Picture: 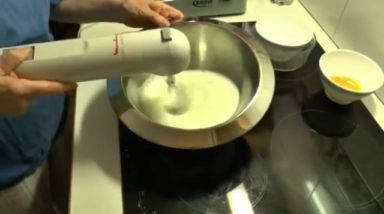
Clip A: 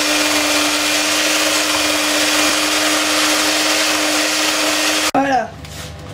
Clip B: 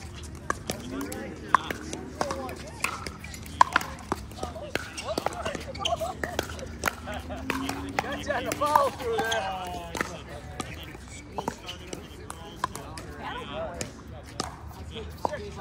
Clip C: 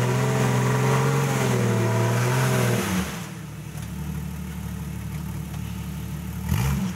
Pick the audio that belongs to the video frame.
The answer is A